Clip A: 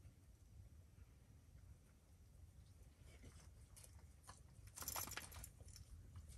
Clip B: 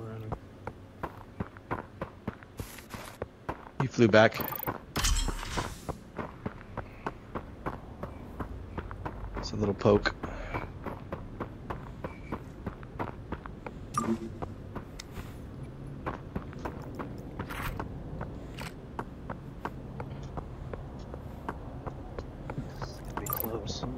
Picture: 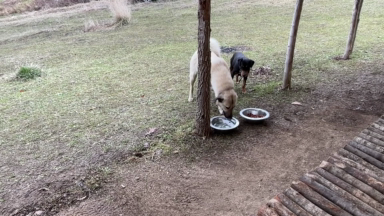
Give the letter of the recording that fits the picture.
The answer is A